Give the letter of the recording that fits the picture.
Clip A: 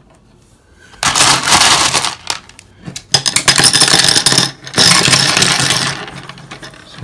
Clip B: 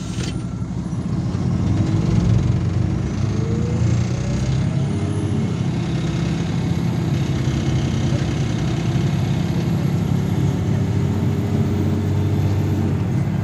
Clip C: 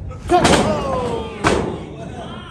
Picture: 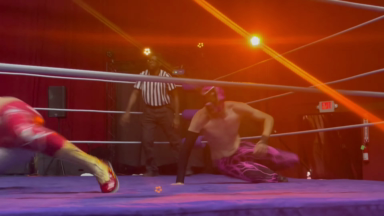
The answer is C